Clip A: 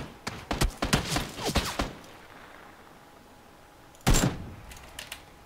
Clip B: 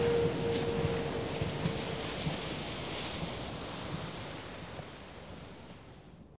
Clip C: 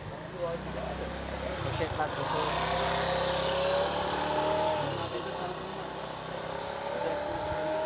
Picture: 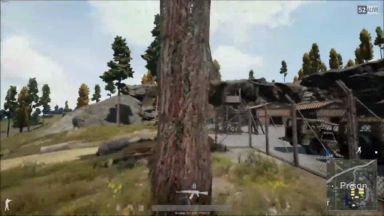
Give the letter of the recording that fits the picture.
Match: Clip A